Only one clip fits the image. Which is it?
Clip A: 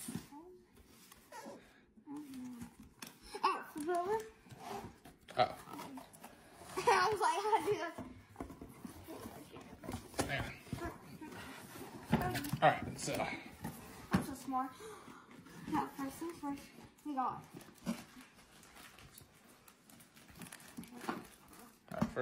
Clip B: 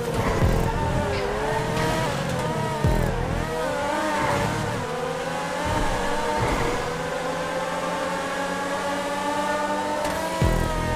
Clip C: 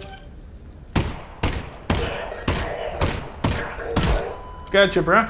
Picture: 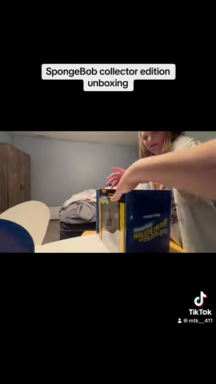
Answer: A